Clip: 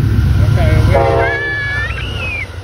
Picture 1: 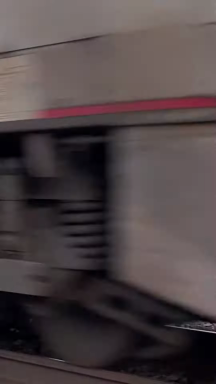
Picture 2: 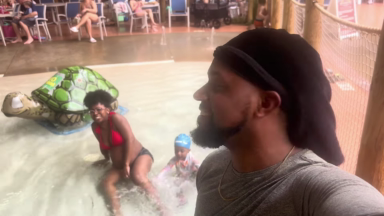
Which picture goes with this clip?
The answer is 1